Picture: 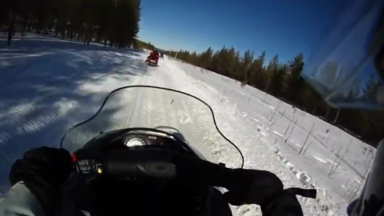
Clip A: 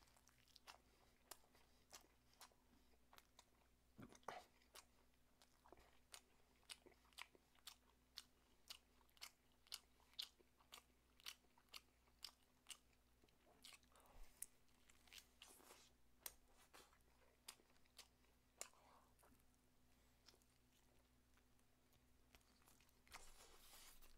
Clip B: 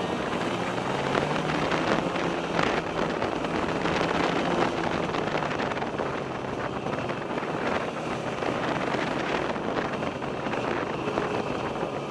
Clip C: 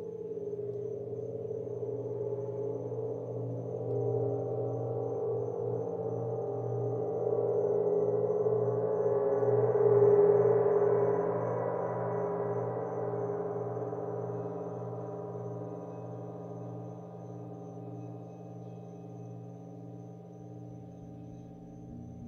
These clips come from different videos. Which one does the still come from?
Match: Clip B